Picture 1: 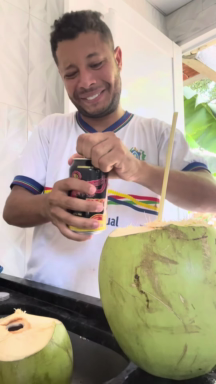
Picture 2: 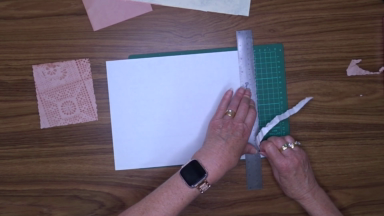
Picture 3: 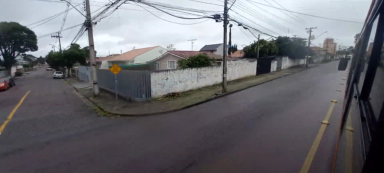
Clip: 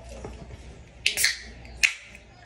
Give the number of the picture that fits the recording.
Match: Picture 1